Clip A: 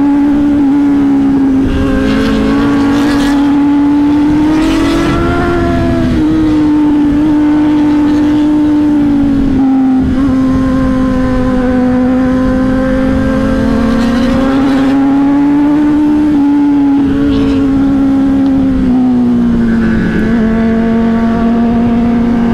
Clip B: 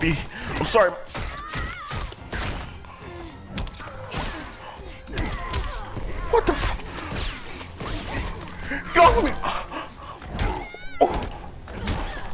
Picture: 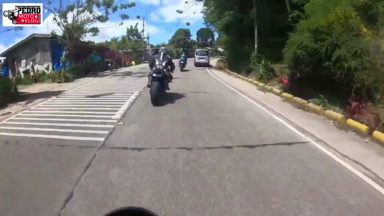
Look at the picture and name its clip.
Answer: A